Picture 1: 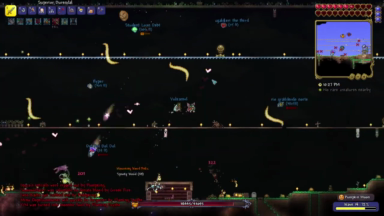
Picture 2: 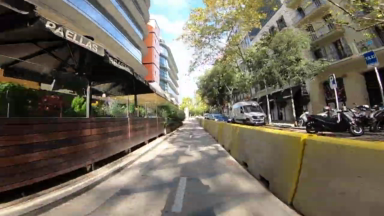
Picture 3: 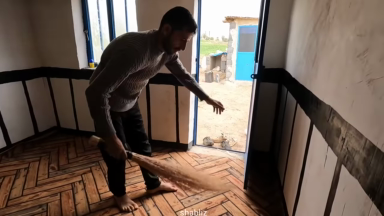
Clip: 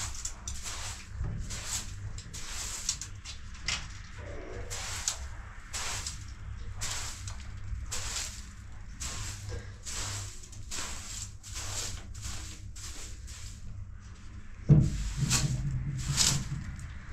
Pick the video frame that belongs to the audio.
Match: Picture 3